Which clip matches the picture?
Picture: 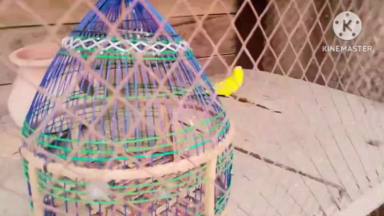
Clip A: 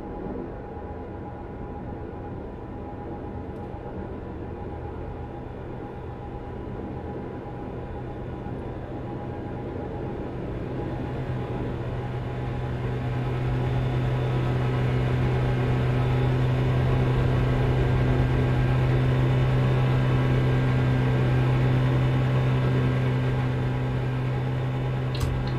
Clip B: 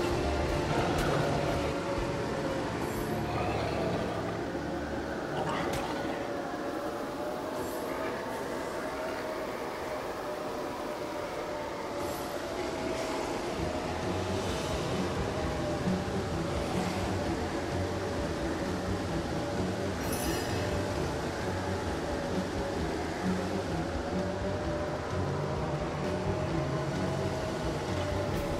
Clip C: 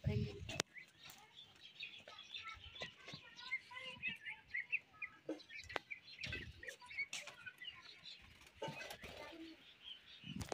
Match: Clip C